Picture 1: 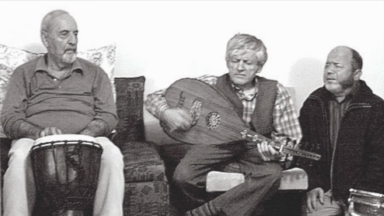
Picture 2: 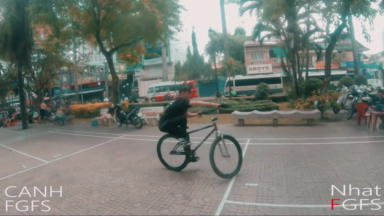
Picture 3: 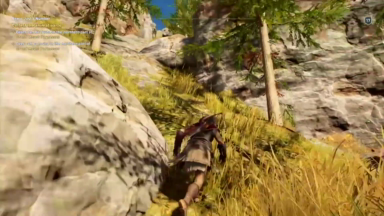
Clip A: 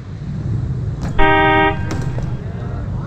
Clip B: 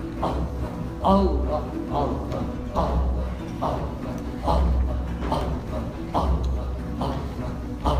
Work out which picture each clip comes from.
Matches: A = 2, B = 1